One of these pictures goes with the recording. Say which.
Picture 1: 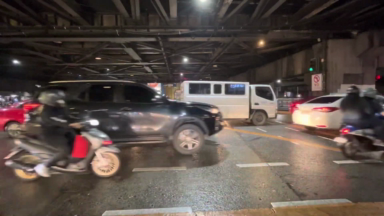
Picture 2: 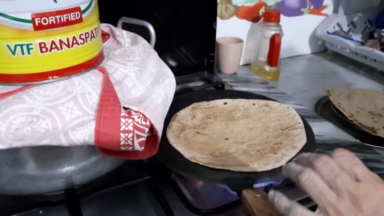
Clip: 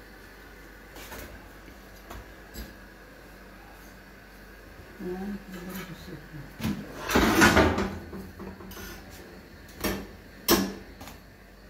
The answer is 2